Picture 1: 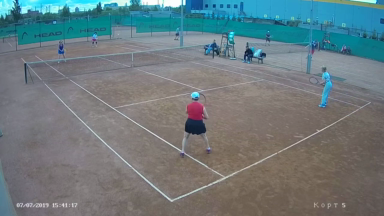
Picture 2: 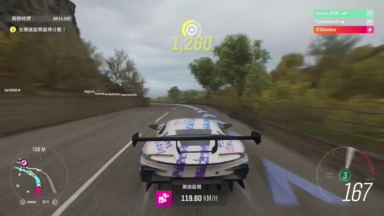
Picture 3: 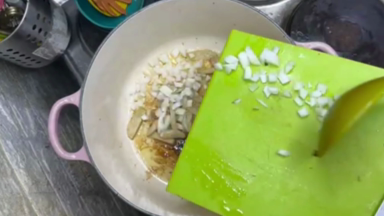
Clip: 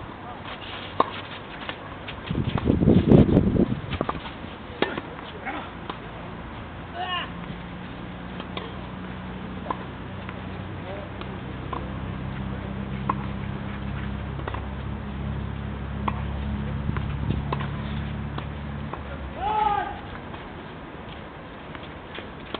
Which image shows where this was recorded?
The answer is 1